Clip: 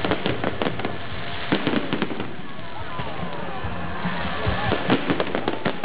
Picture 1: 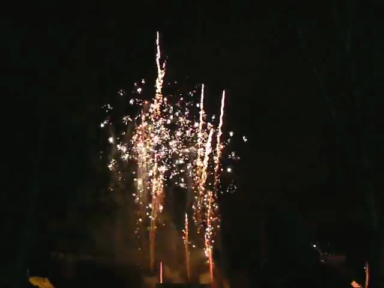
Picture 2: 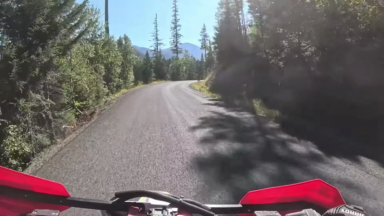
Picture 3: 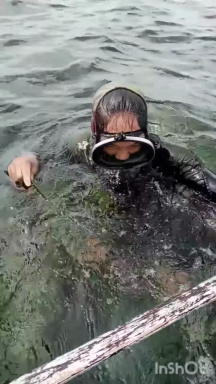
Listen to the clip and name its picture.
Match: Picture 1